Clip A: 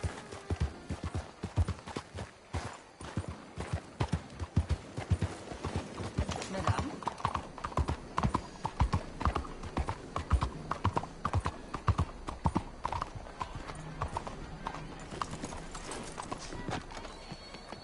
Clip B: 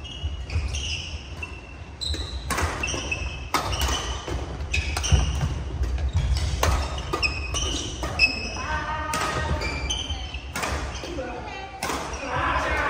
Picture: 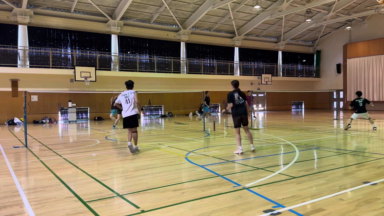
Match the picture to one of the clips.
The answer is B